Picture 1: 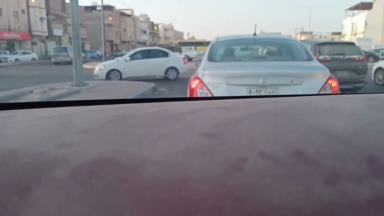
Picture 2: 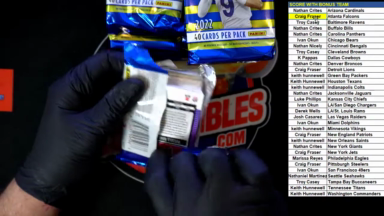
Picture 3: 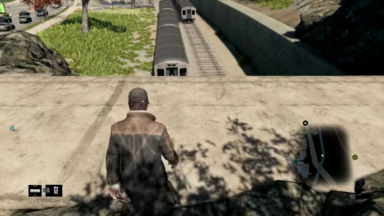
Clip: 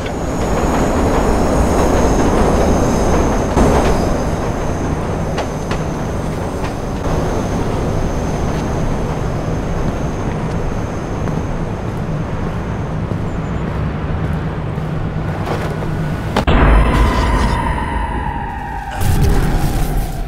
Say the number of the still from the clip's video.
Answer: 3